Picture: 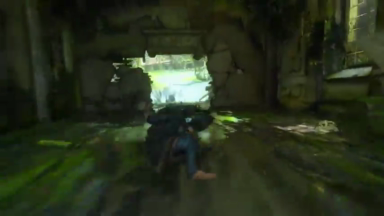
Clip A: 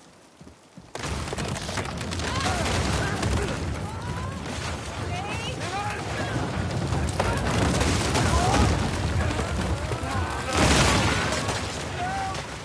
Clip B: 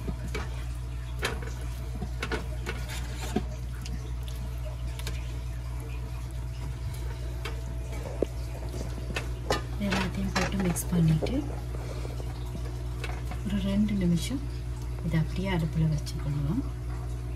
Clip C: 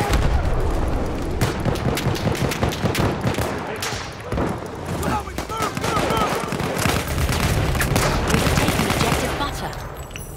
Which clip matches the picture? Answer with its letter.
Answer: A